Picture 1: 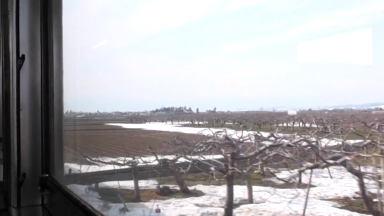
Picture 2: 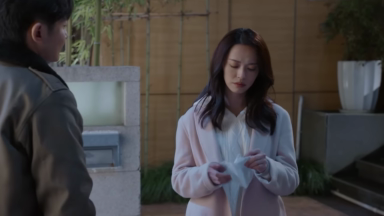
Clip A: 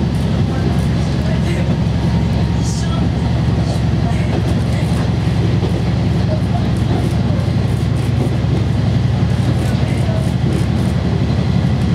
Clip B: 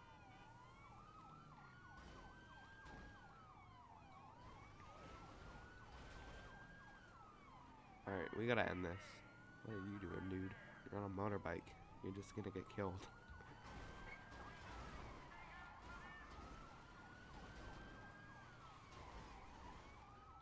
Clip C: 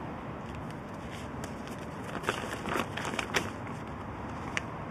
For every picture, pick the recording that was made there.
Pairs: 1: A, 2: C